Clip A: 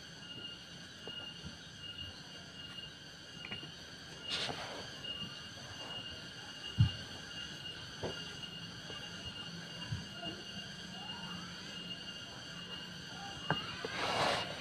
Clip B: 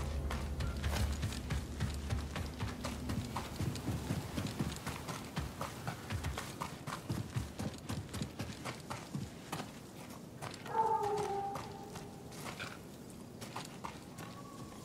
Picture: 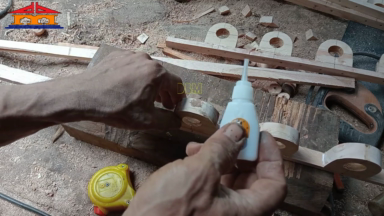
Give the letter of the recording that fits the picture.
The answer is A